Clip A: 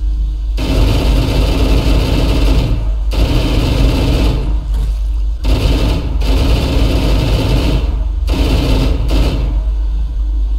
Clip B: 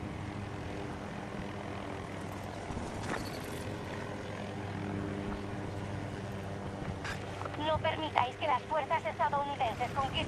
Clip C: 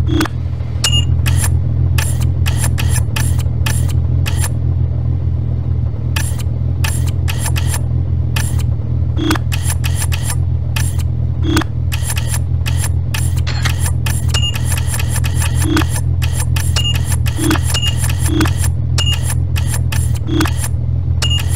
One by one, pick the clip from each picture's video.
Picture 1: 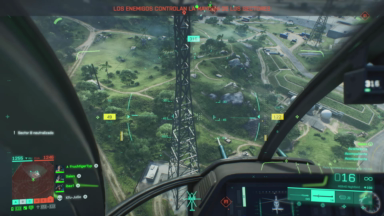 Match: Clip B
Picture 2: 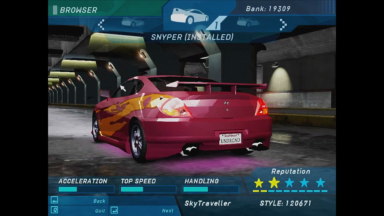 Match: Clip C